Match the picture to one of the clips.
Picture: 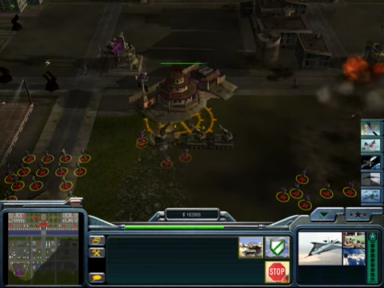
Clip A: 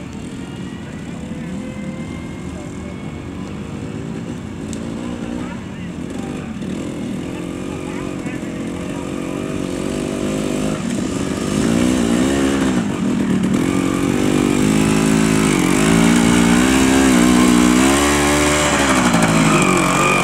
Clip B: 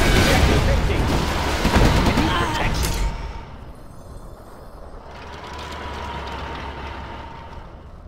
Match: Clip B